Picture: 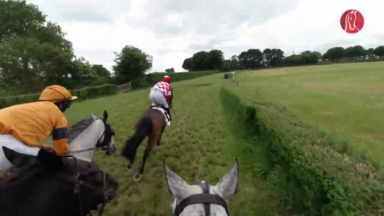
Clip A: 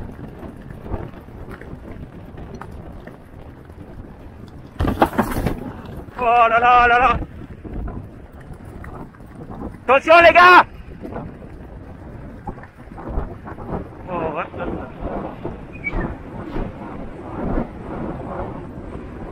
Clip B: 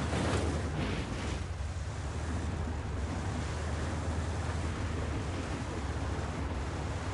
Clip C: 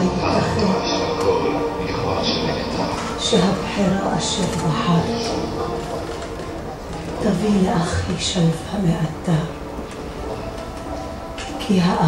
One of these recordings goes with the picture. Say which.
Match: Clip A